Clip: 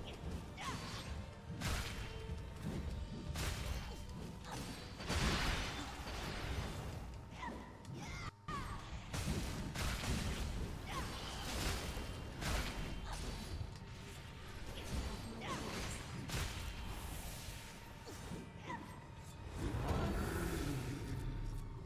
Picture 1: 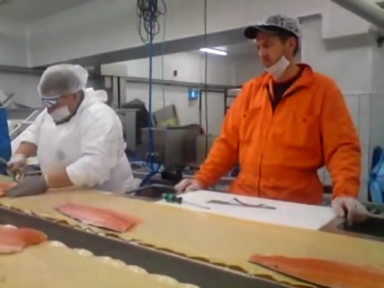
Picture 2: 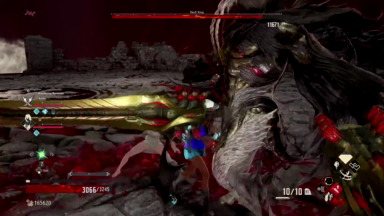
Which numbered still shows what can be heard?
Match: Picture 2